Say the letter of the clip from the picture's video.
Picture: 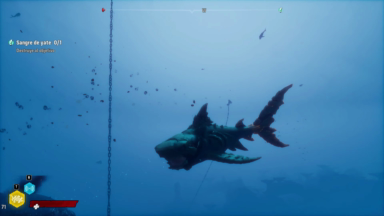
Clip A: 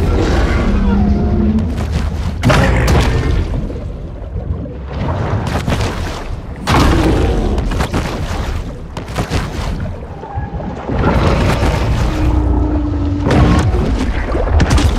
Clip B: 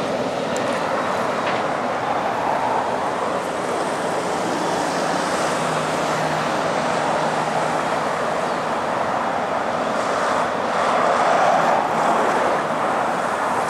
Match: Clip A